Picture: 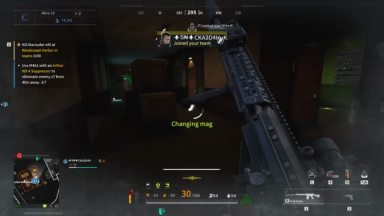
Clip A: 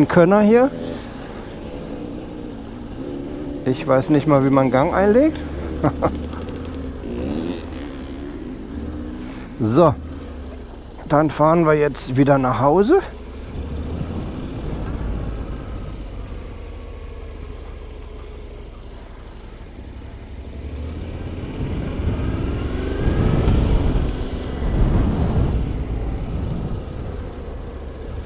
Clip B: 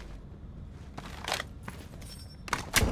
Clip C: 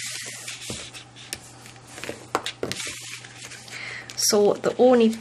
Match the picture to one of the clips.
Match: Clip B